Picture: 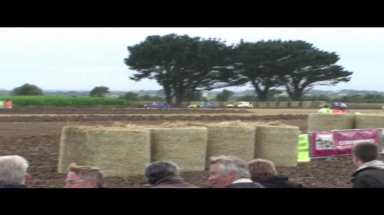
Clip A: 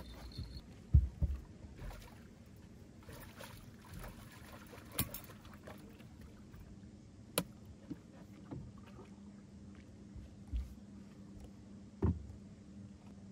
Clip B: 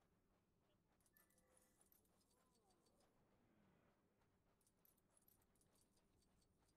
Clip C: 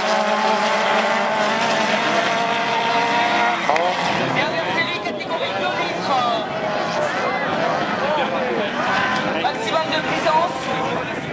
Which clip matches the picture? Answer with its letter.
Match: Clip C